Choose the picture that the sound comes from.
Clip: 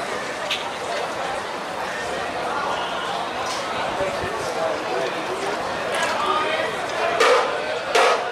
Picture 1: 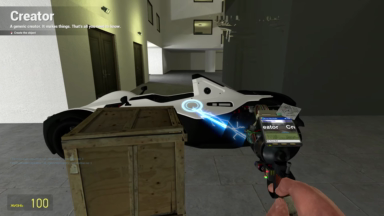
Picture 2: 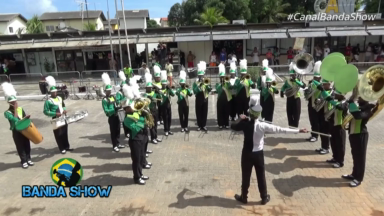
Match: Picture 2